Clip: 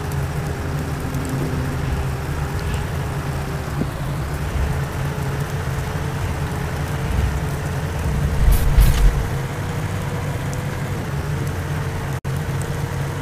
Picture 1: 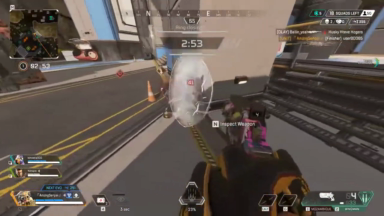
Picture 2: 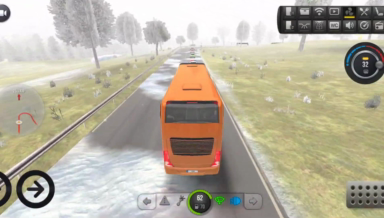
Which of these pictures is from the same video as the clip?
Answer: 2